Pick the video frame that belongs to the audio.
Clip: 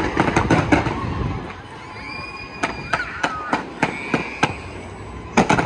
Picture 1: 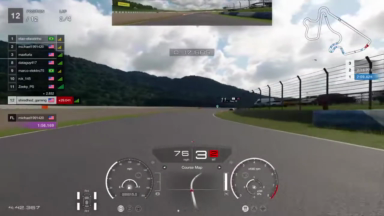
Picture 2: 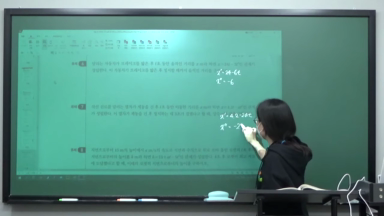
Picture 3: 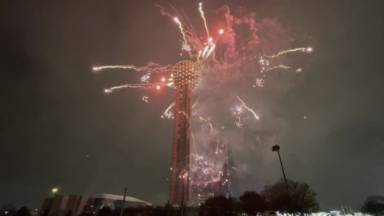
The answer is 3